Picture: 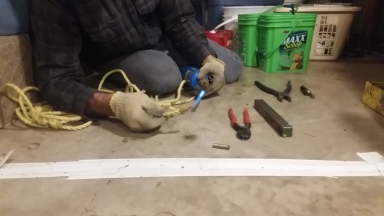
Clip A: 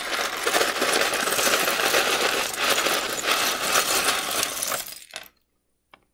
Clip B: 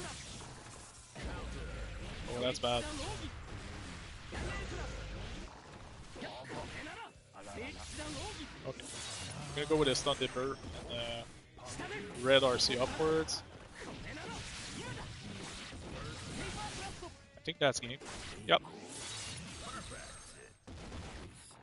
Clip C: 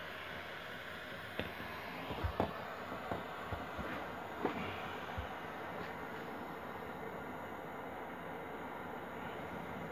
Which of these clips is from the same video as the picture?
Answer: C